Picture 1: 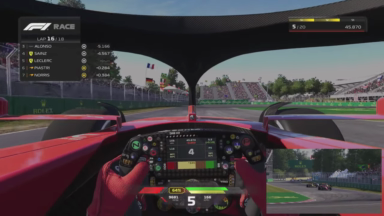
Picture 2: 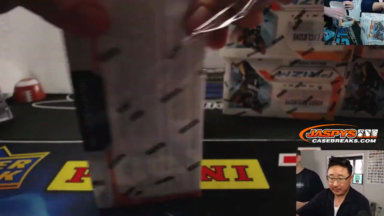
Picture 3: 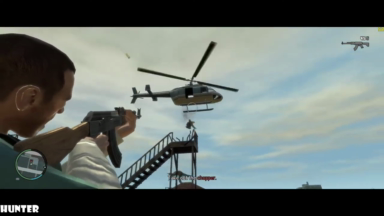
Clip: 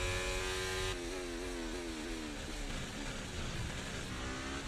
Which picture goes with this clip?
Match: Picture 1